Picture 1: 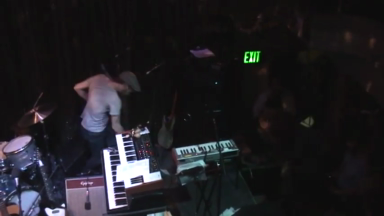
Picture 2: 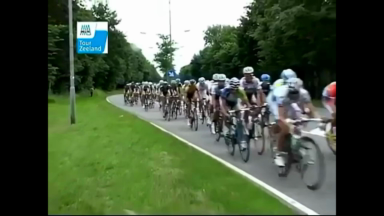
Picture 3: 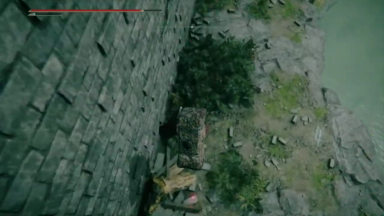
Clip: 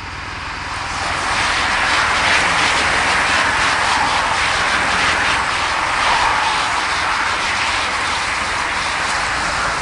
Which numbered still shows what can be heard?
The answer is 2